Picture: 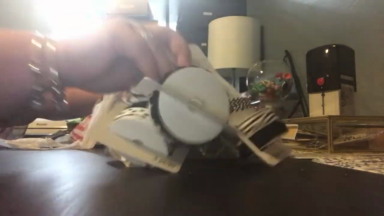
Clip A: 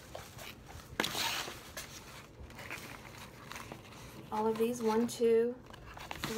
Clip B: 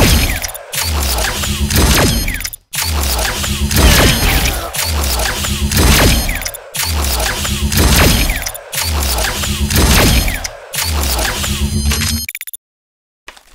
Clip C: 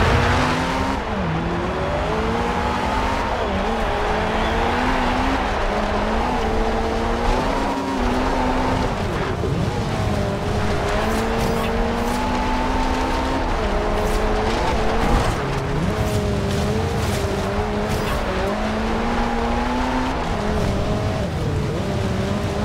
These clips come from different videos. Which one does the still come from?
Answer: A